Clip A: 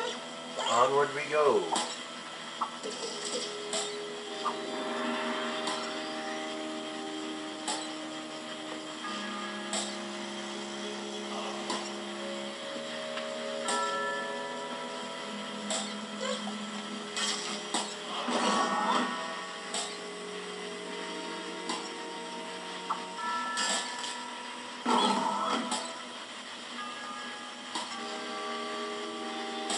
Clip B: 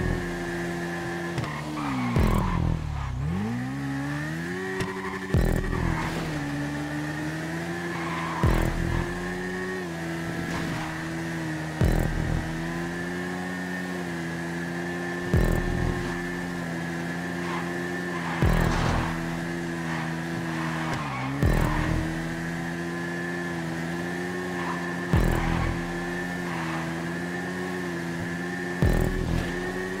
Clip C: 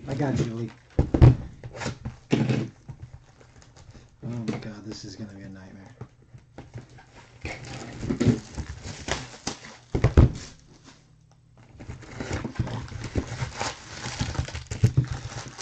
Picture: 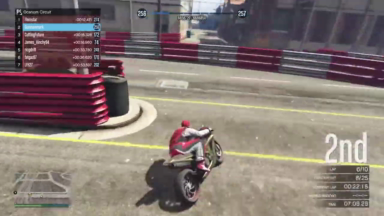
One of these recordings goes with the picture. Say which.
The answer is B